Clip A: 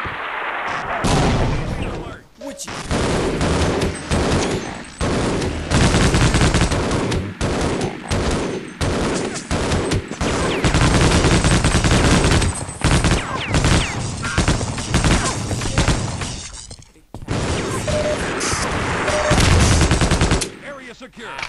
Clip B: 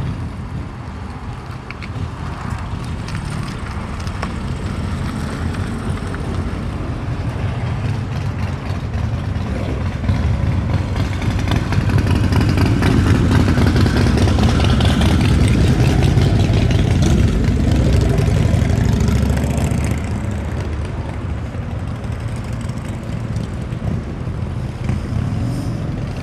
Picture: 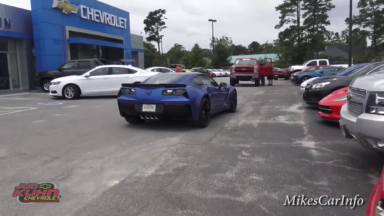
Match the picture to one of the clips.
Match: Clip B